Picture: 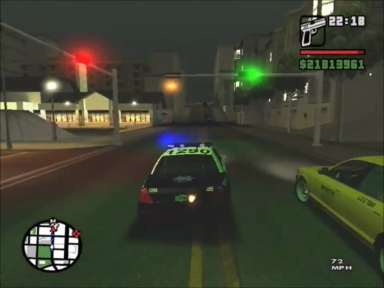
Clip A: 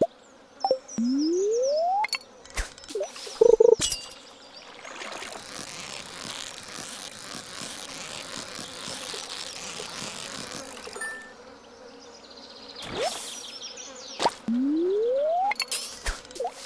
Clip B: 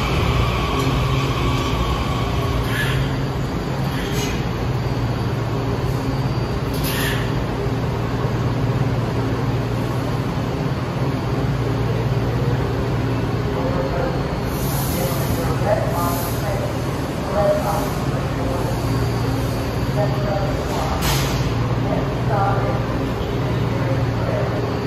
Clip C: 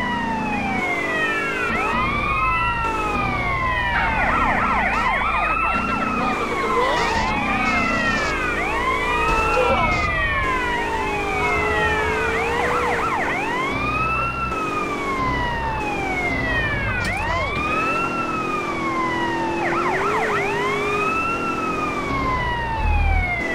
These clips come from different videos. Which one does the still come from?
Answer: C